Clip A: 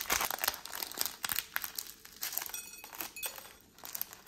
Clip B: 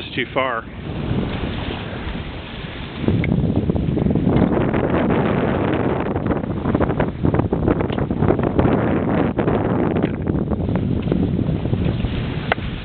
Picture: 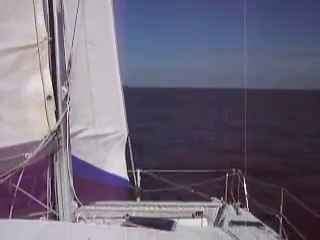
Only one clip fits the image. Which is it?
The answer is B